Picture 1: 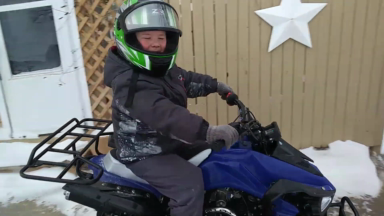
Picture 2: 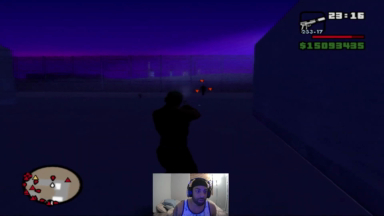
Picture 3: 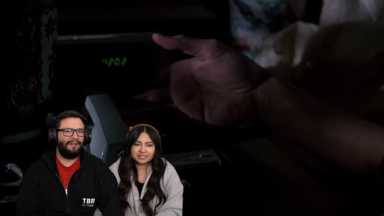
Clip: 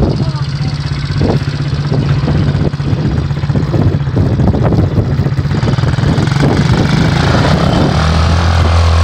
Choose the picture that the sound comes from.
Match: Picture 1